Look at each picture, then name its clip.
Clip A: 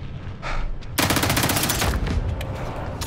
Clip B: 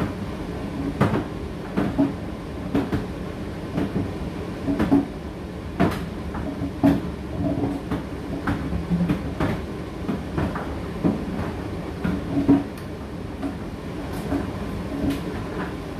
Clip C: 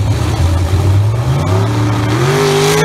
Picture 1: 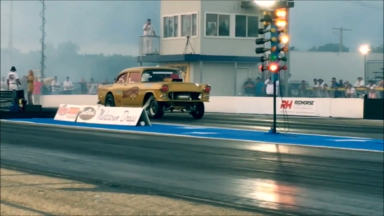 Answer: C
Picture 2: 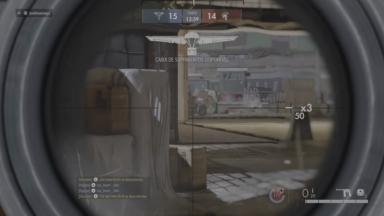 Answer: A